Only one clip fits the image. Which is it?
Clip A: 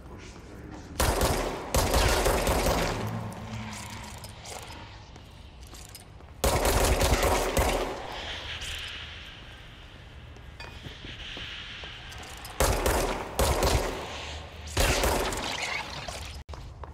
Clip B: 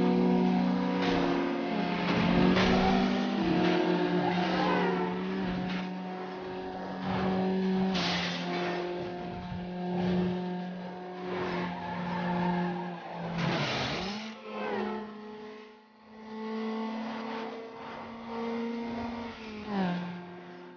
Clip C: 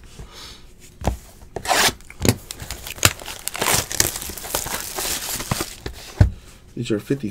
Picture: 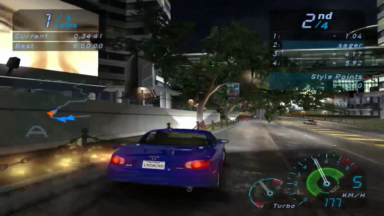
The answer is B